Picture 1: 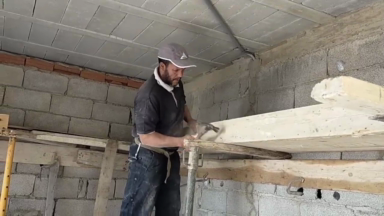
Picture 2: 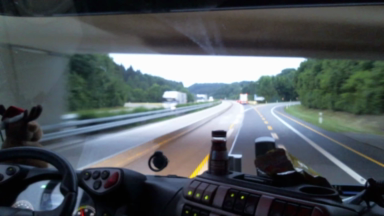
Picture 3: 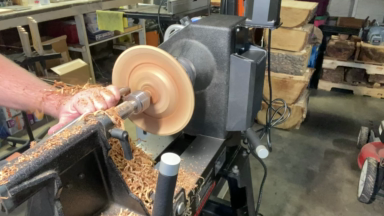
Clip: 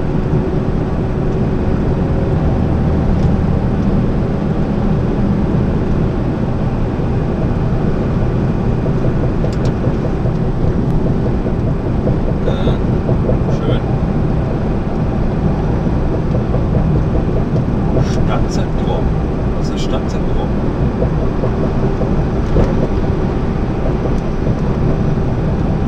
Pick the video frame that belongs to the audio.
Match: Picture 2